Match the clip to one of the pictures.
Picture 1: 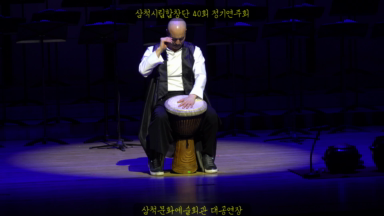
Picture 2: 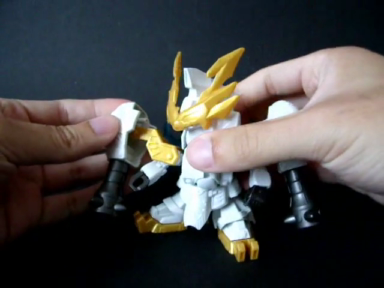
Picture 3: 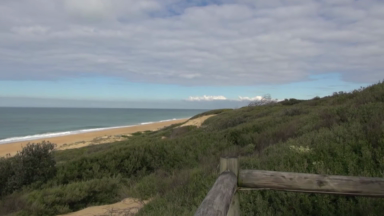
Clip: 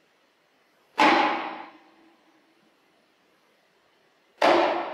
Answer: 1